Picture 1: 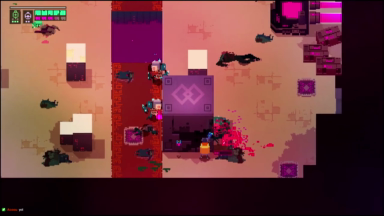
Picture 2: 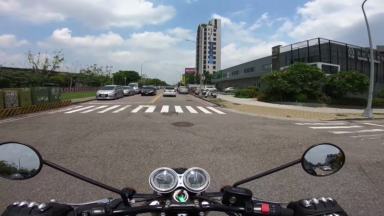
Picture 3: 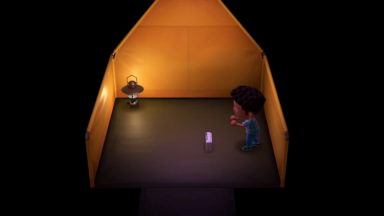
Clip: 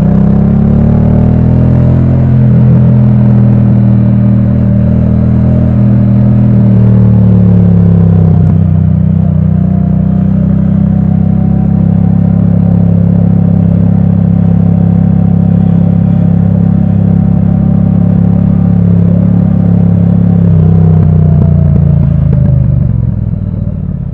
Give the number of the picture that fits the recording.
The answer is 2